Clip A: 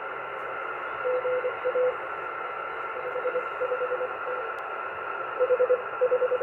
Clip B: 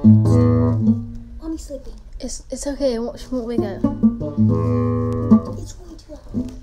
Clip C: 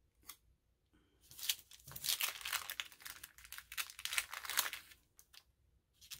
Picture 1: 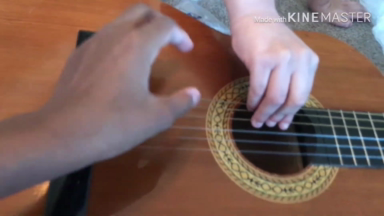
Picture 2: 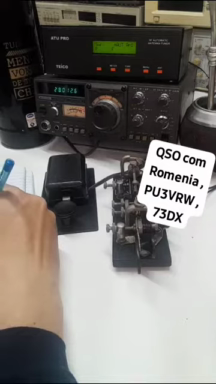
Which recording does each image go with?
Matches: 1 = B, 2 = A